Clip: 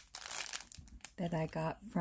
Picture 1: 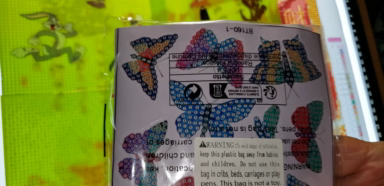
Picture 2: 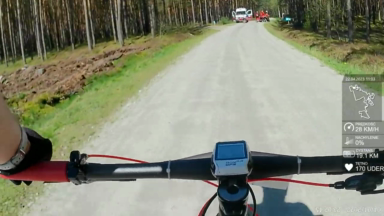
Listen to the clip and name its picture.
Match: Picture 1